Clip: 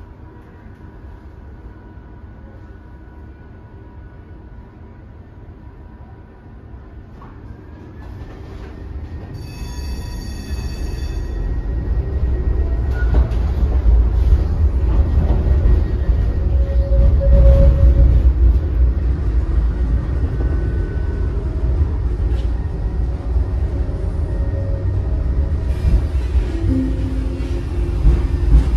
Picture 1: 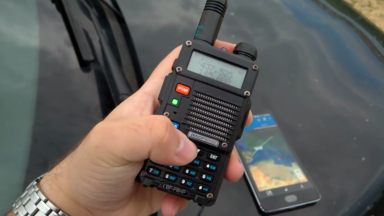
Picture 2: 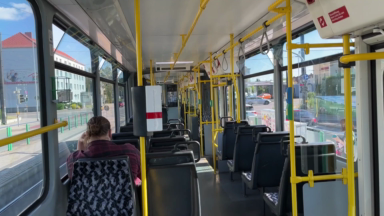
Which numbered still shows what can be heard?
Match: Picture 2